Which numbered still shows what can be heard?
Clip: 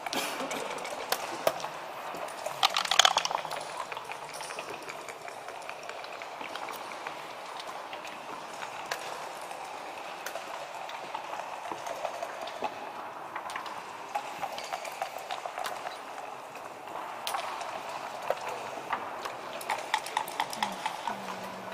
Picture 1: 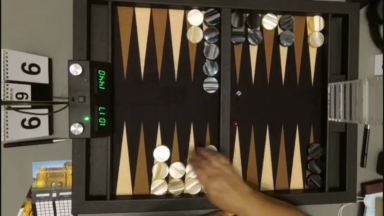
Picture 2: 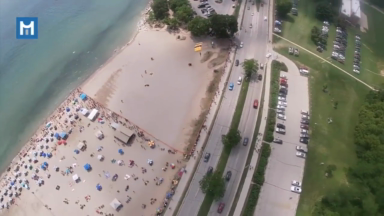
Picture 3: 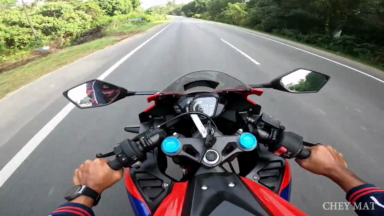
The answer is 1